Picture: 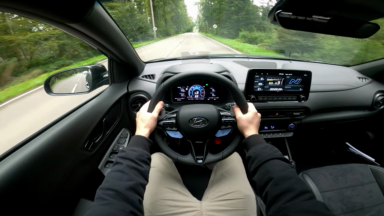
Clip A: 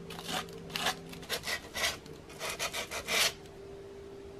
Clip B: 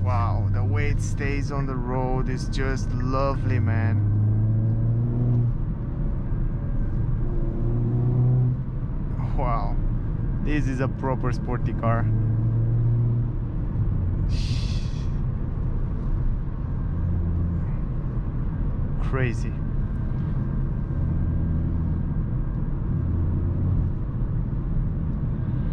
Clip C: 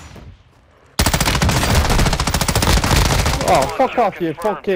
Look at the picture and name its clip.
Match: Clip B